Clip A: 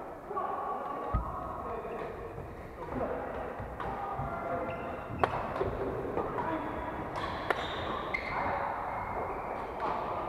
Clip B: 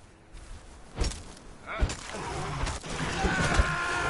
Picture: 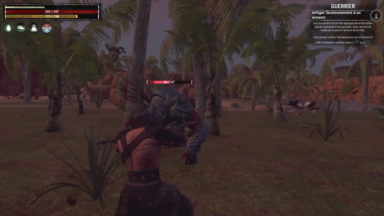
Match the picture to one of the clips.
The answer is B